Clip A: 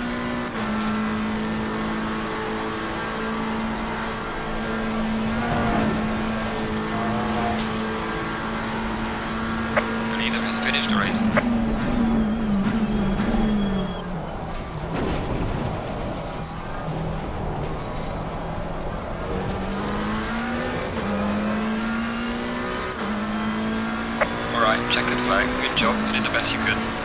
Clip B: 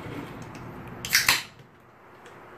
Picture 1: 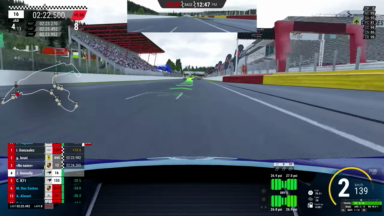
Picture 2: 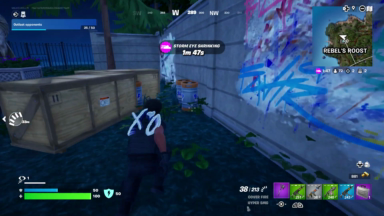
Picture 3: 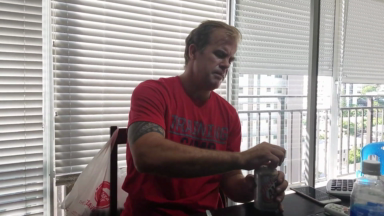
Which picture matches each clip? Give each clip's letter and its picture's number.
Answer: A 1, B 3